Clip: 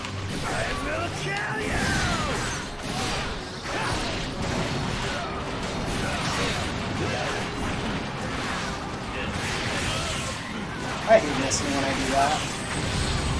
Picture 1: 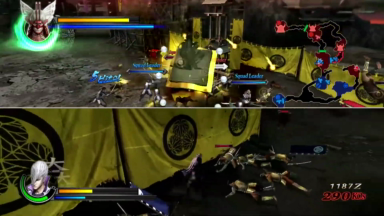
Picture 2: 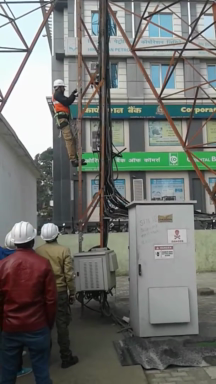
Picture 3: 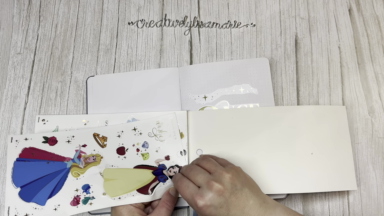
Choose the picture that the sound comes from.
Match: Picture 1